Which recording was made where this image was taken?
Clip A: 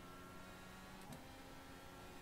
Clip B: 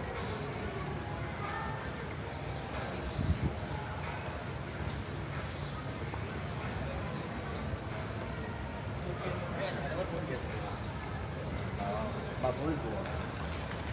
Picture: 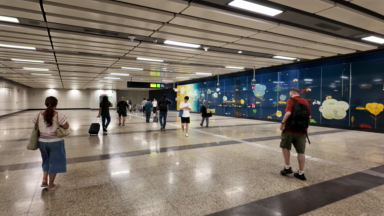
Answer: B